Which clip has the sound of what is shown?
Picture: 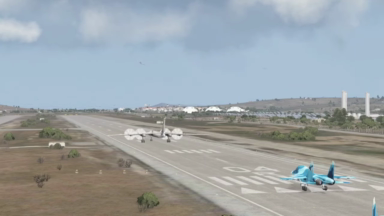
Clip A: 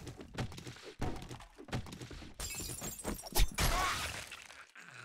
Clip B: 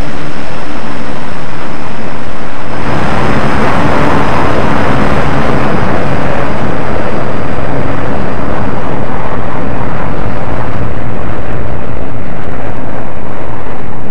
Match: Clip B